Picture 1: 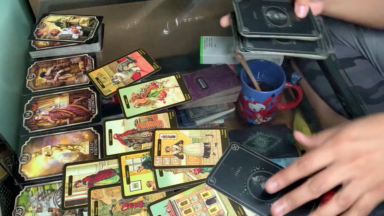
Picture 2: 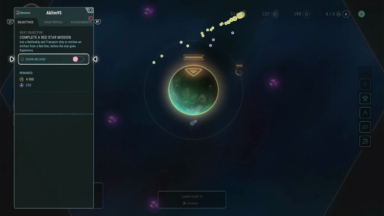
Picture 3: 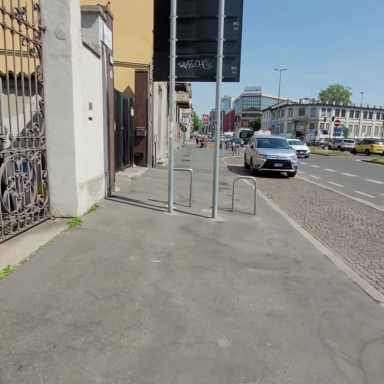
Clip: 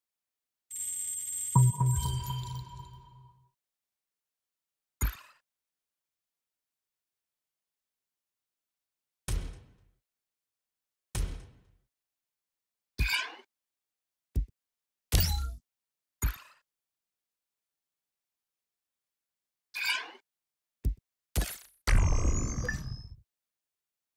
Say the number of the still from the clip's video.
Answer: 2